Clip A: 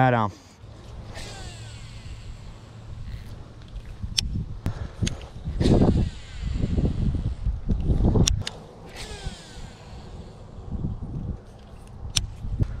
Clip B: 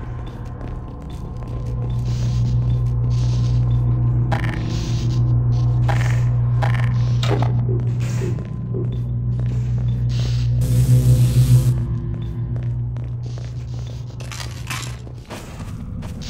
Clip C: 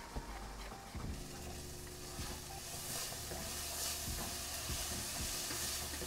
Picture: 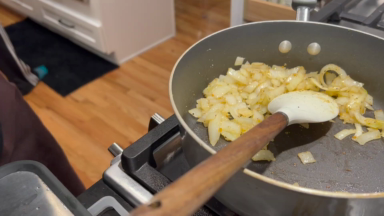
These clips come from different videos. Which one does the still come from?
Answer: C